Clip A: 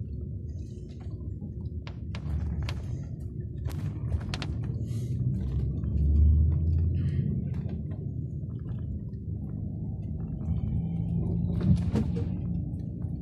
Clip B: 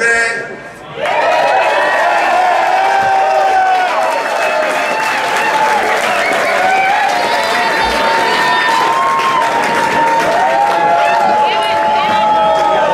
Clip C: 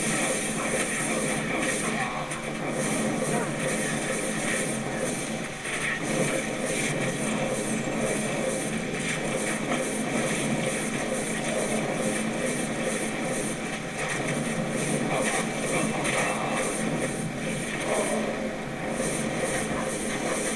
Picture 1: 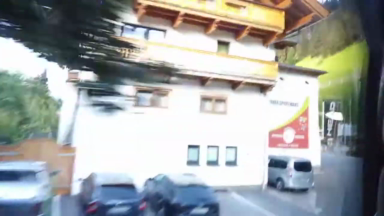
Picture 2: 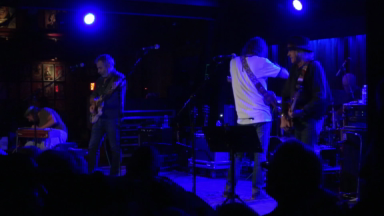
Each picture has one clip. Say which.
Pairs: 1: A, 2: B